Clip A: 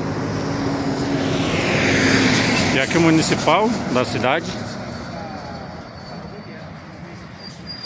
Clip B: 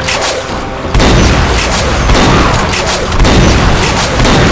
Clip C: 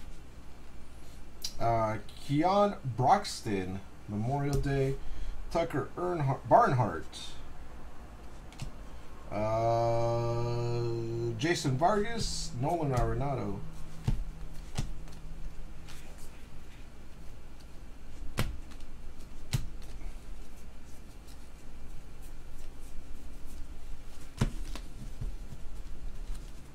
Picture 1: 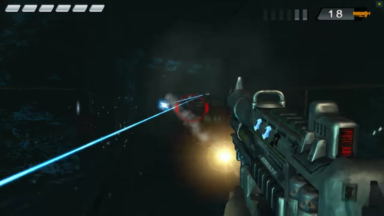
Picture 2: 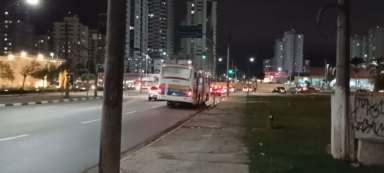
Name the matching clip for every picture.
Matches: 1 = B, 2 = A